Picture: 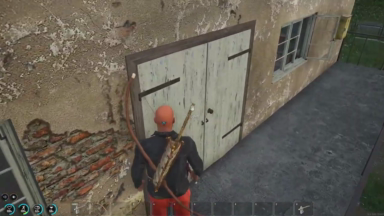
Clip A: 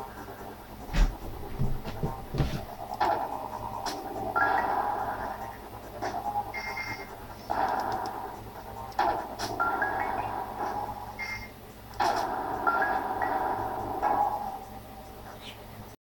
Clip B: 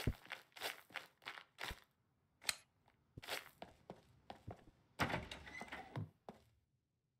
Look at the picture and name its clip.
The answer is B